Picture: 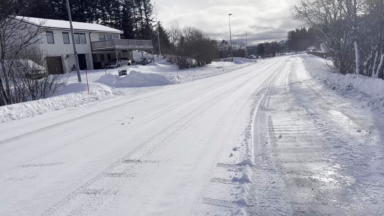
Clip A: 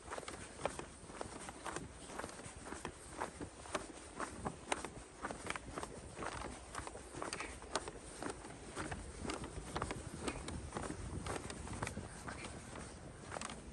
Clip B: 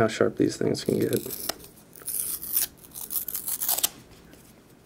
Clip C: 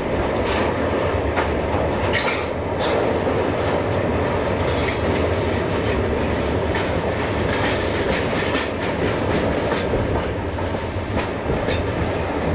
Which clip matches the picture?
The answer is A